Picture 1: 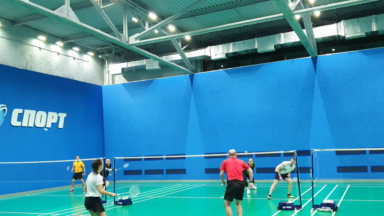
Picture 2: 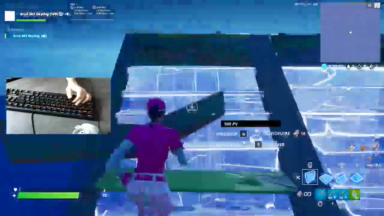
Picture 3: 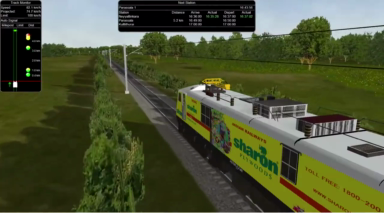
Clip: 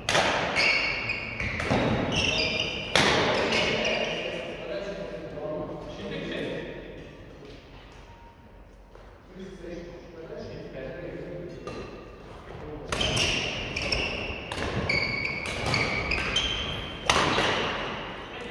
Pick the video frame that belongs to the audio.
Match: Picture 1